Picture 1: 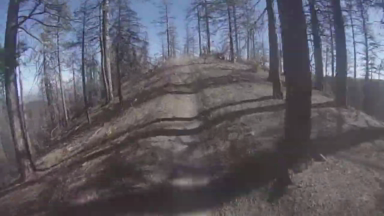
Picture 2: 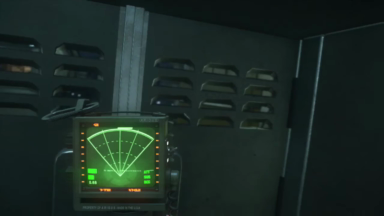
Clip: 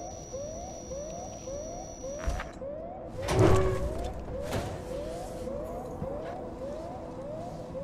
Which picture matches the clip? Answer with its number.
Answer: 2